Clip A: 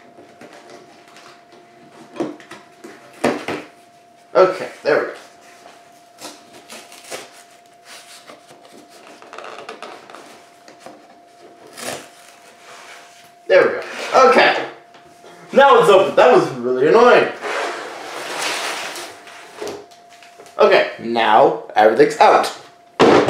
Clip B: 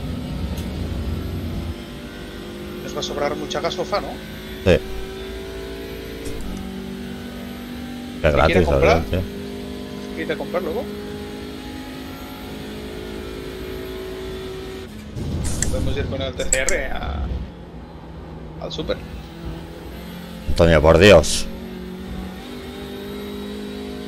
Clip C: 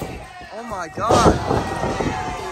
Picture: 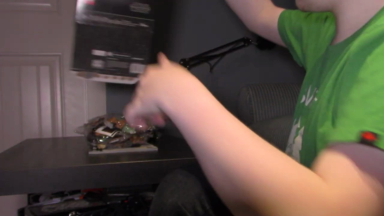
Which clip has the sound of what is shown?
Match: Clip A